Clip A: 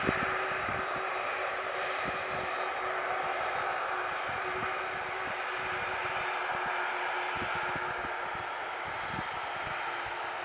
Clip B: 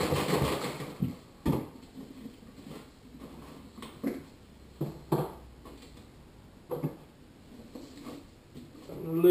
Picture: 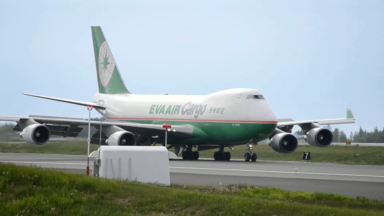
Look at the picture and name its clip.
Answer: A